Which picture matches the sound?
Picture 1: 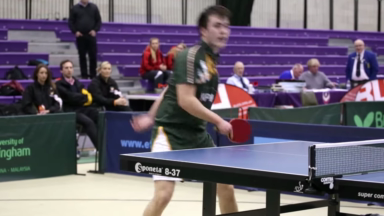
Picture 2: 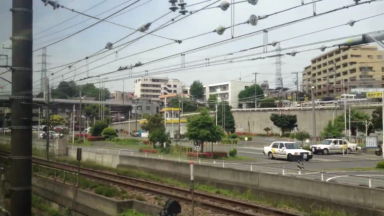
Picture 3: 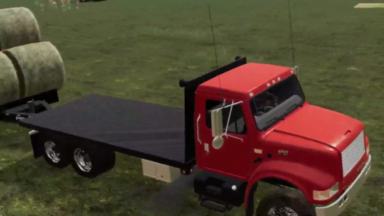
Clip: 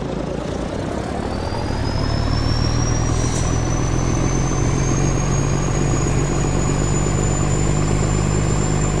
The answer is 3